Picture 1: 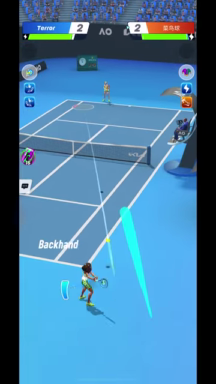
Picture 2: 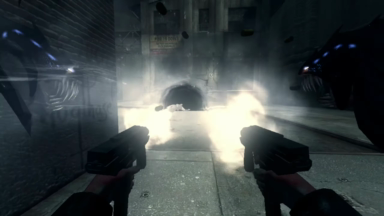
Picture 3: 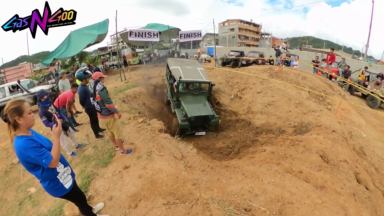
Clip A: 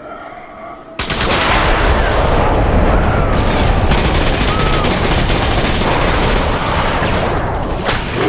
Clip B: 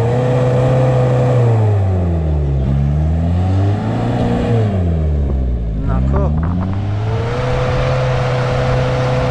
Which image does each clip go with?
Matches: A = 2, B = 3